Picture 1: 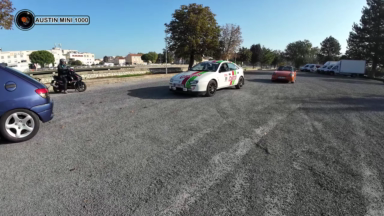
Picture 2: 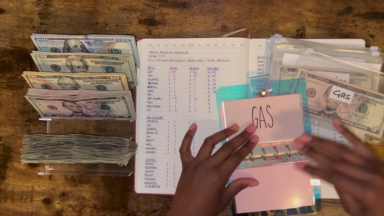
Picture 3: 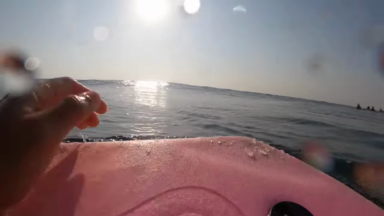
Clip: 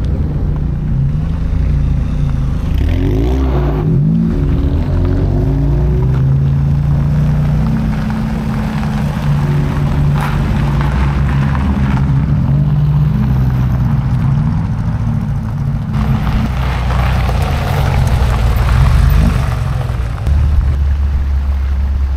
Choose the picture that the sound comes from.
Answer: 1